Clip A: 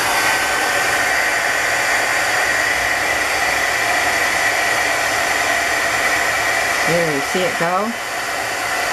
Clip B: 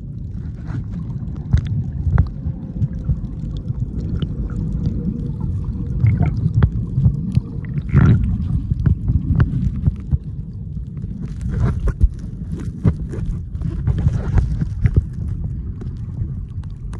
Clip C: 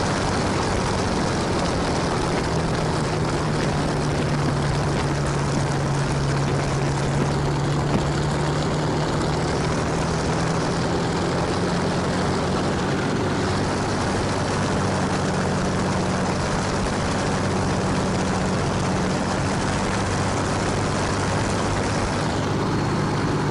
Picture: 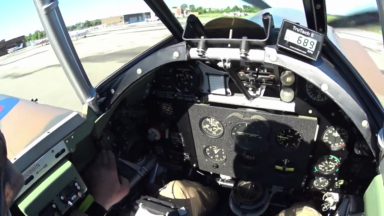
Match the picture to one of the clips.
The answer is C